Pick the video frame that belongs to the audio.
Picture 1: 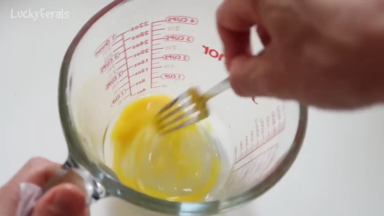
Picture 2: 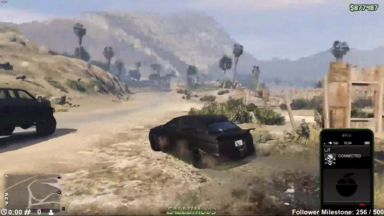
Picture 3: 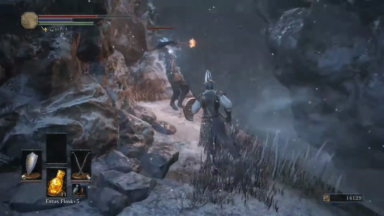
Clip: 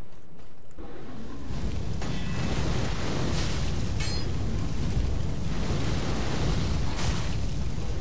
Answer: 3